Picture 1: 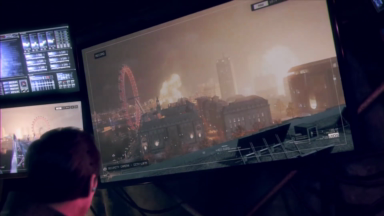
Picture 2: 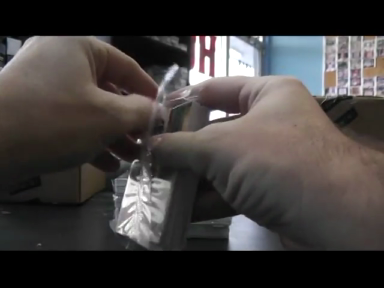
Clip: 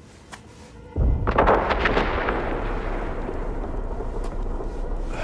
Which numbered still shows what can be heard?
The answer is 1